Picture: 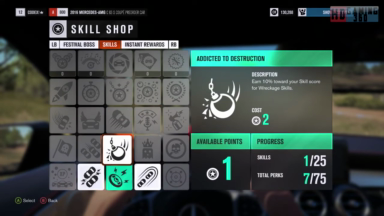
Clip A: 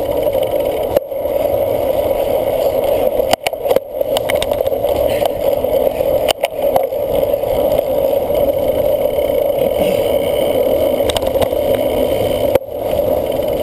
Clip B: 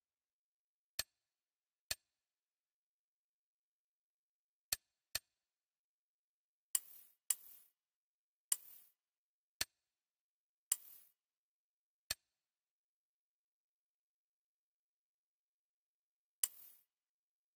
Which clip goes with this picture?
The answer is B